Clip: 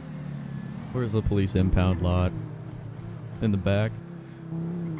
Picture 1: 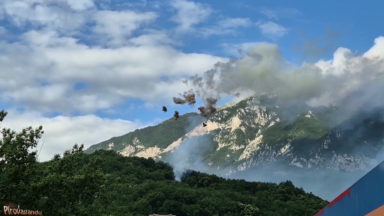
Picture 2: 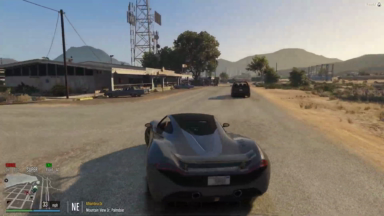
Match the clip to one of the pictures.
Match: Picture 2